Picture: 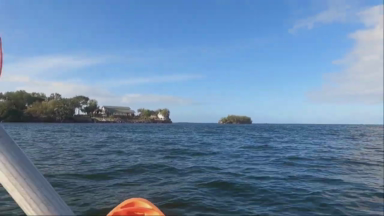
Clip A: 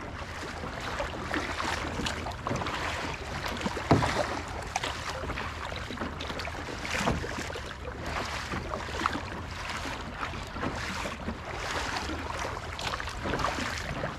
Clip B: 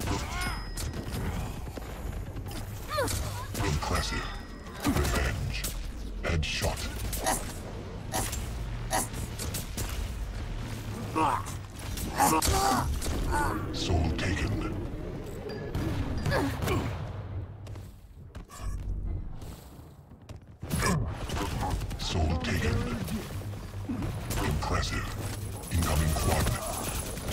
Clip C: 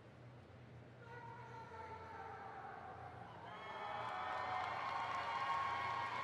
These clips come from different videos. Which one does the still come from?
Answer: A